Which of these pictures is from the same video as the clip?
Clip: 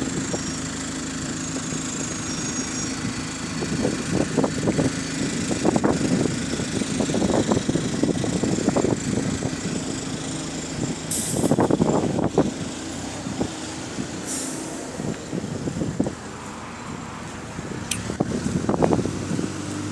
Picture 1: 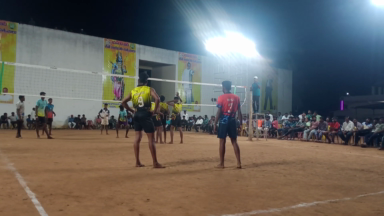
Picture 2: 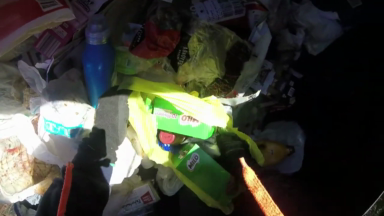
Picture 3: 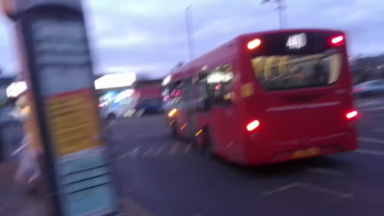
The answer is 3